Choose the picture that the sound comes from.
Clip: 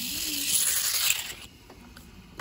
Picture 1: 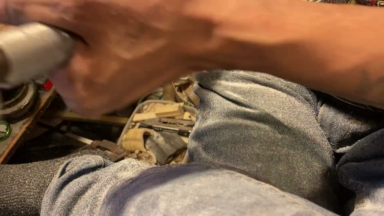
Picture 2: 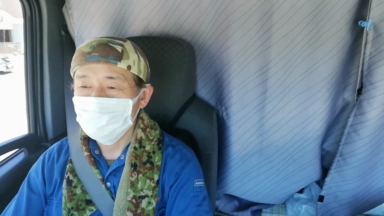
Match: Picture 1